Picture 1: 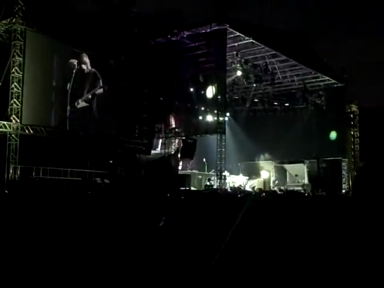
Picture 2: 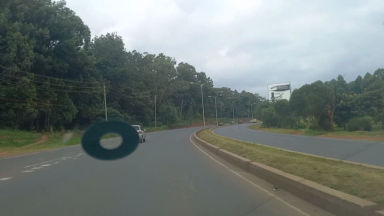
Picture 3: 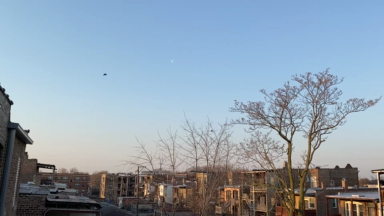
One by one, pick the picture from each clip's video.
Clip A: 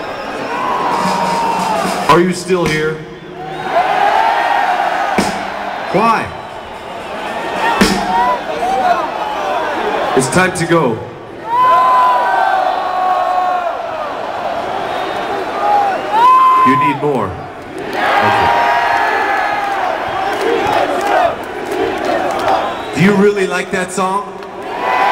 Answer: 1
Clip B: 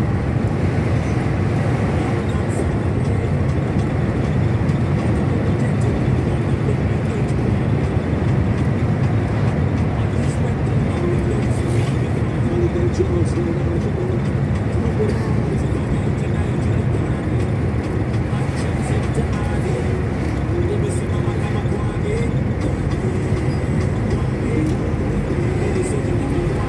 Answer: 2